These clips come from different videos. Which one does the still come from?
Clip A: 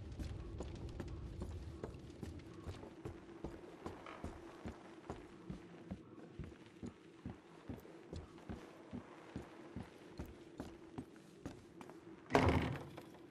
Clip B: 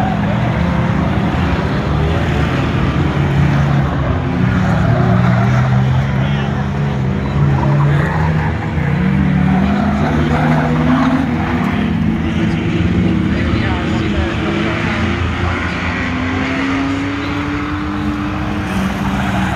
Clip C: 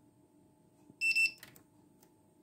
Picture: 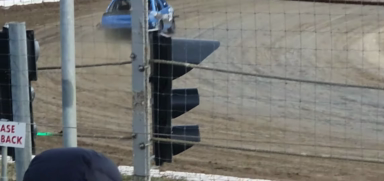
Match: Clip B